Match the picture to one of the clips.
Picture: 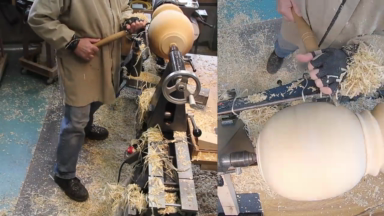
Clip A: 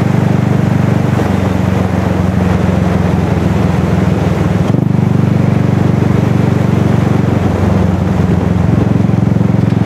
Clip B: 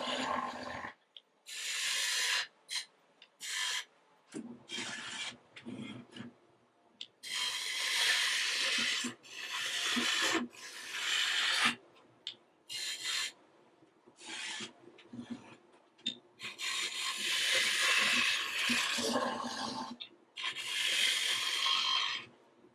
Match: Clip B